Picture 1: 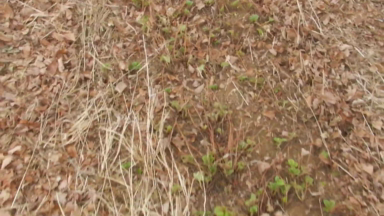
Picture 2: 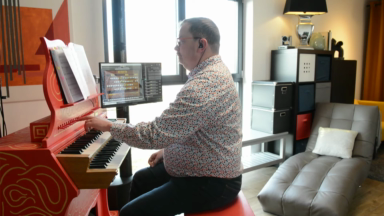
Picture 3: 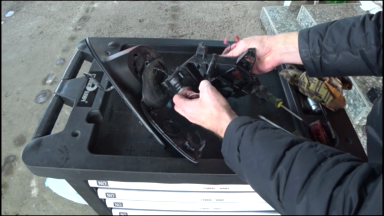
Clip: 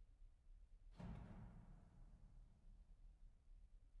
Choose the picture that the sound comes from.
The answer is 2